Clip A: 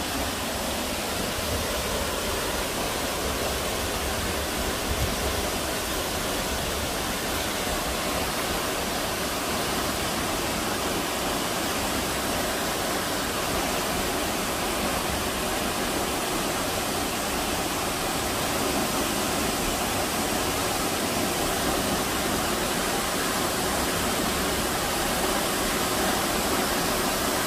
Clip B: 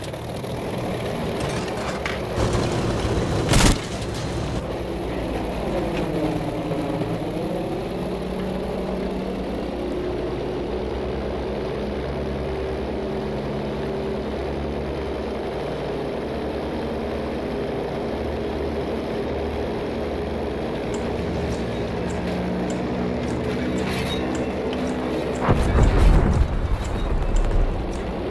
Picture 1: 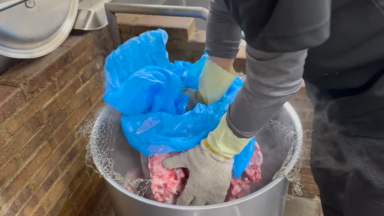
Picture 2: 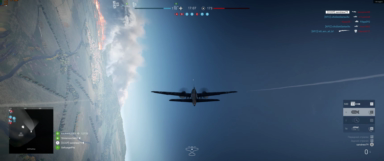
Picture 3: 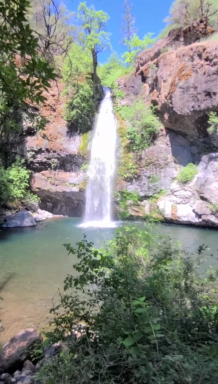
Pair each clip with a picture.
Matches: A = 3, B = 2